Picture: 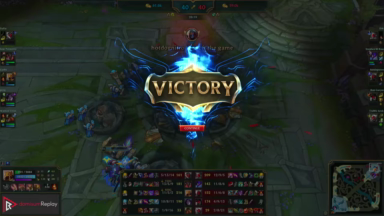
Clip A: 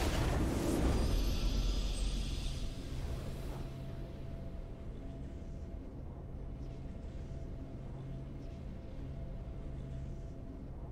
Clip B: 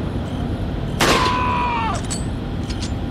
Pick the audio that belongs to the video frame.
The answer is A